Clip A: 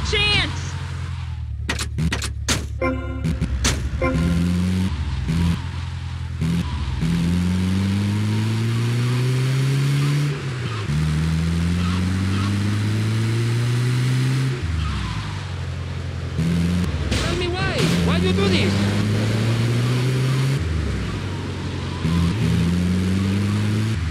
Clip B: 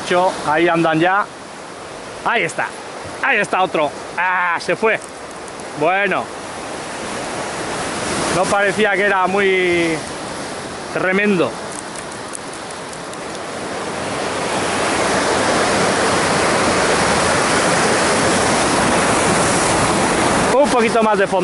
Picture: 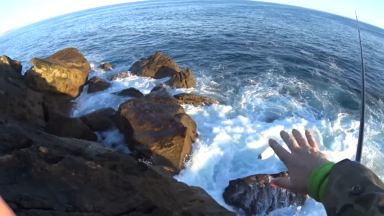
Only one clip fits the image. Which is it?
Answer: B